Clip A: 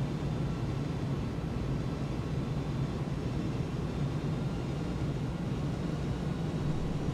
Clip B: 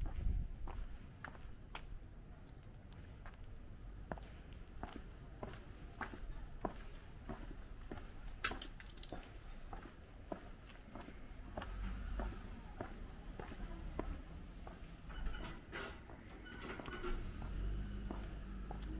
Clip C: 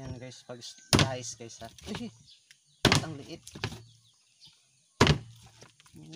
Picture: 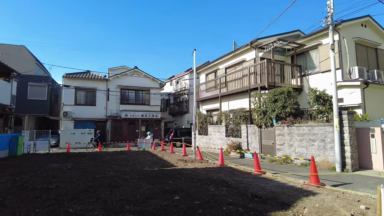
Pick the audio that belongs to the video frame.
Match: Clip B